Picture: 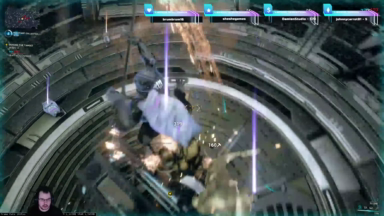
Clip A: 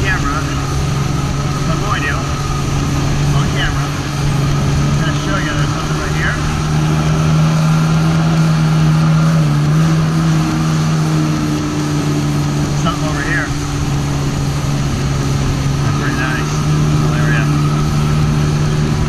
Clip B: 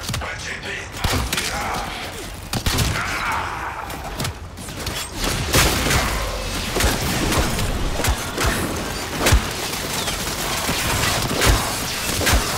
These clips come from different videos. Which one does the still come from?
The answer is B